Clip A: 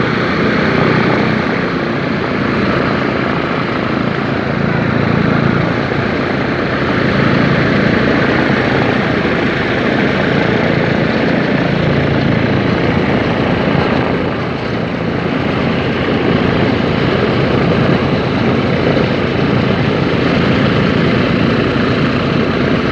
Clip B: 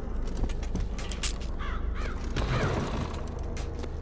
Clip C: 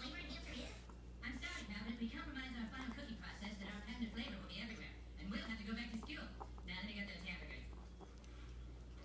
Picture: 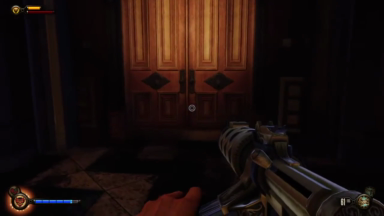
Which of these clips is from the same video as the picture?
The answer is B